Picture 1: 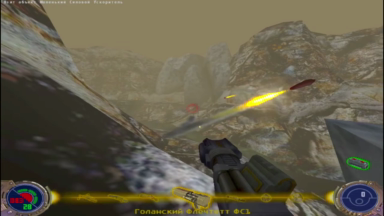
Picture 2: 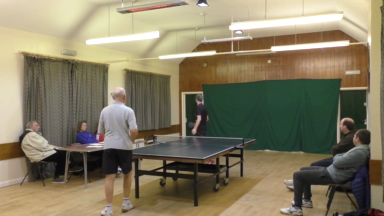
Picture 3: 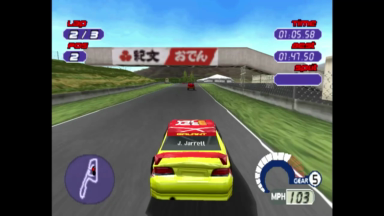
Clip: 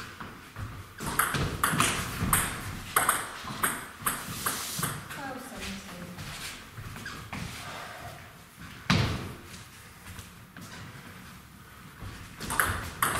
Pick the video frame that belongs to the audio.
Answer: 2